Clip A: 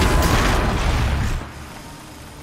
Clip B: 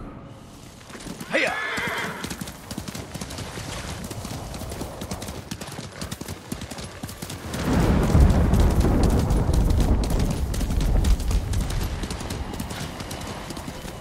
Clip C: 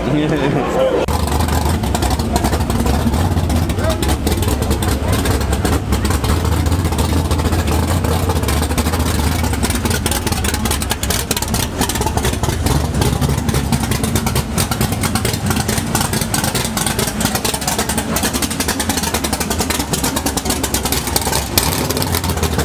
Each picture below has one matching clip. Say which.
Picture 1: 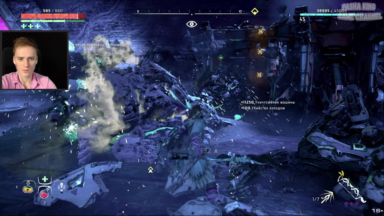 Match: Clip A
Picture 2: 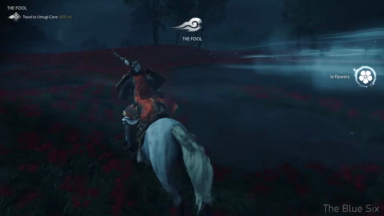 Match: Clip B